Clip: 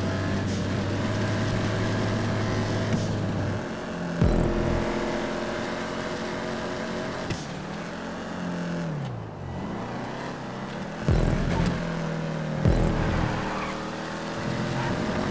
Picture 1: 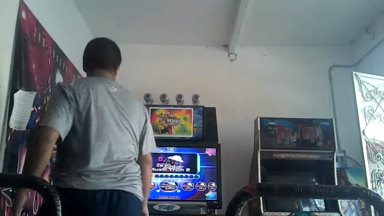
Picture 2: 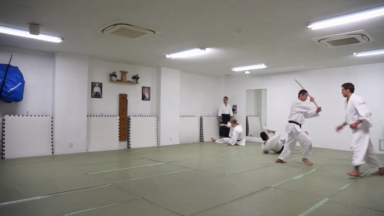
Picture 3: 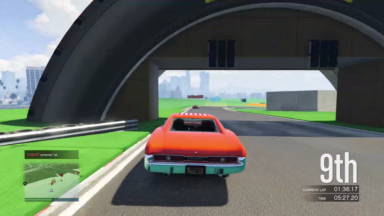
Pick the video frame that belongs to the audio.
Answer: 3